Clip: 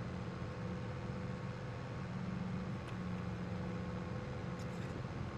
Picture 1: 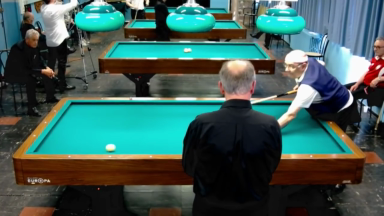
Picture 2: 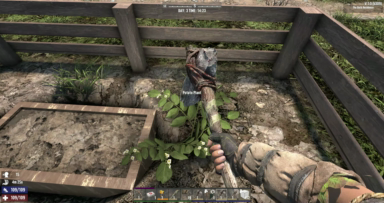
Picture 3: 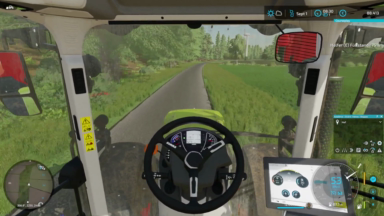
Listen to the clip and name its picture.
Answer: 3